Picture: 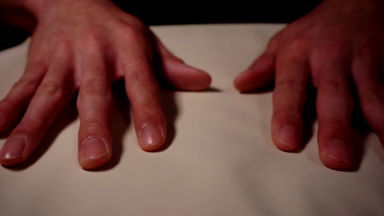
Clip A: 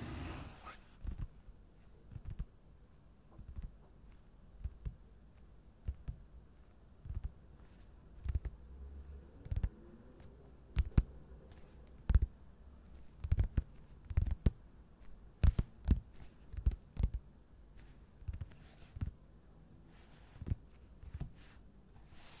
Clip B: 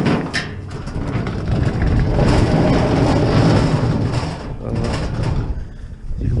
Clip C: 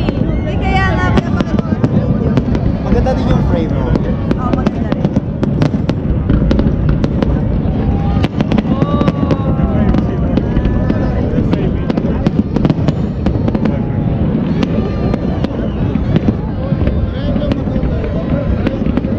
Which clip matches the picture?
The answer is A